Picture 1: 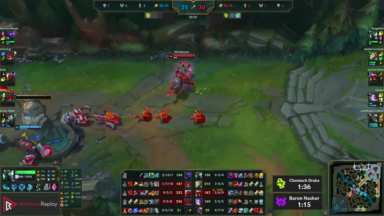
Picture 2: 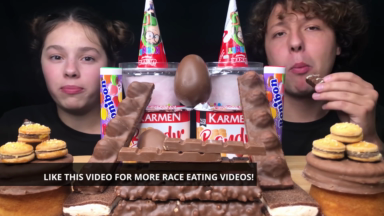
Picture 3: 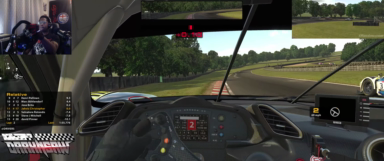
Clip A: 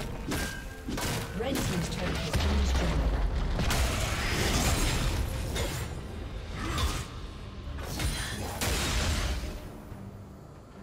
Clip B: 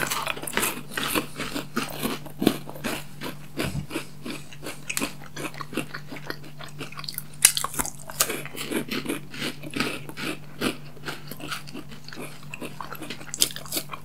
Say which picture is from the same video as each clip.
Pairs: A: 1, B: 2